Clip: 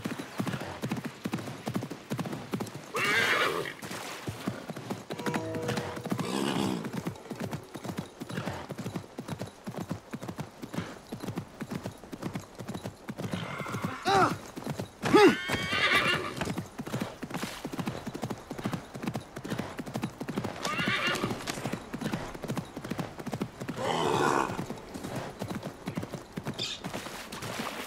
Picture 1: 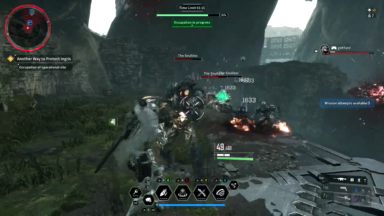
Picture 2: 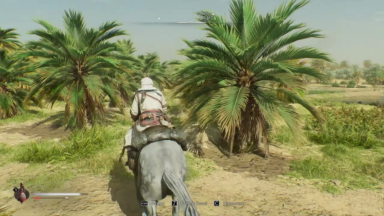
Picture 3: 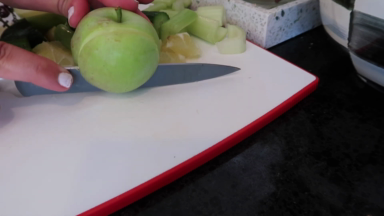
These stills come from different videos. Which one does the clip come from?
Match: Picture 2